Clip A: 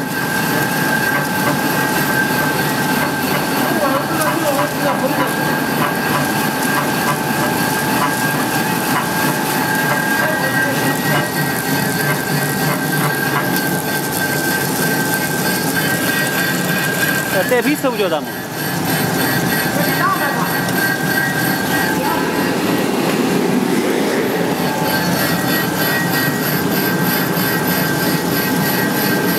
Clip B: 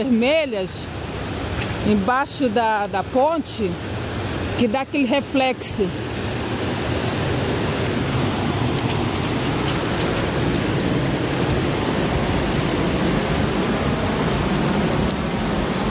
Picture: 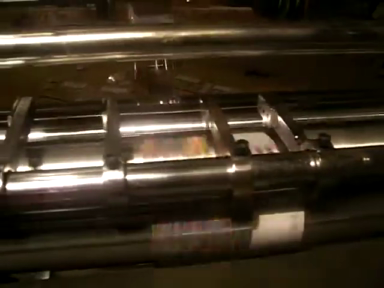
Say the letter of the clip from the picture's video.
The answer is A